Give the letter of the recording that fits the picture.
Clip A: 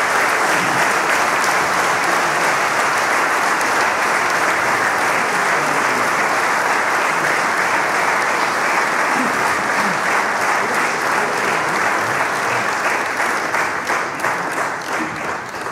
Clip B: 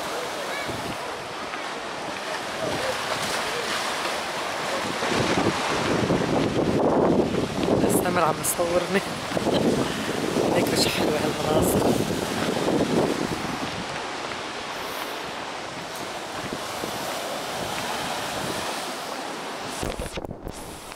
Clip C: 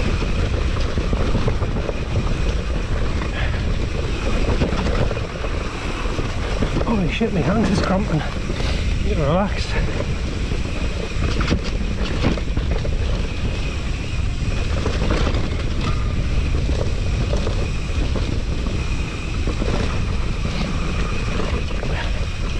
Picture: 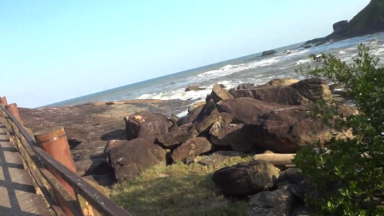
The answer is B